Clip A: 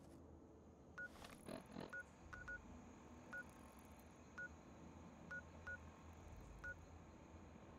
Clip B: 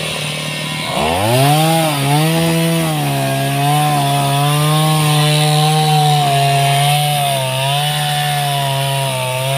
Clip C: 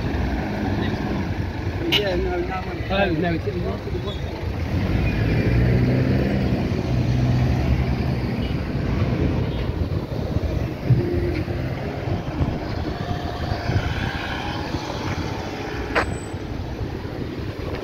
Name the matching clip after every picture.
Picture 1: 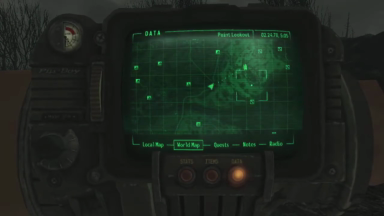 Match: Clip A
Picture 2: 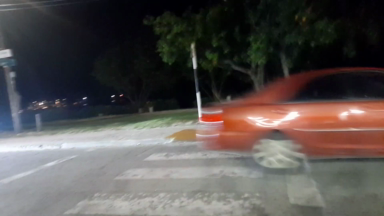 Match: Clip C